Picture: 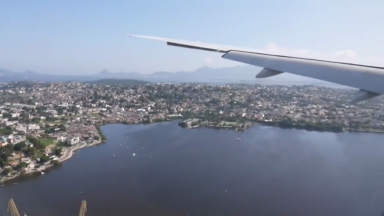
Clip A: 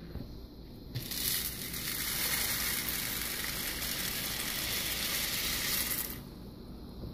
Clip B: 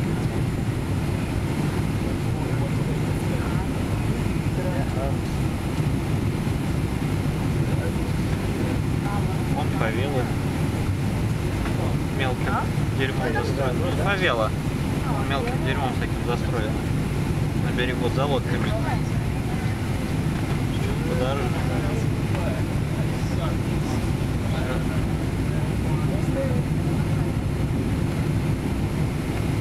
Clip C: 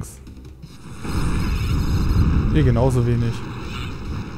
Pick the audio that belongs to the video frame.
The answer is B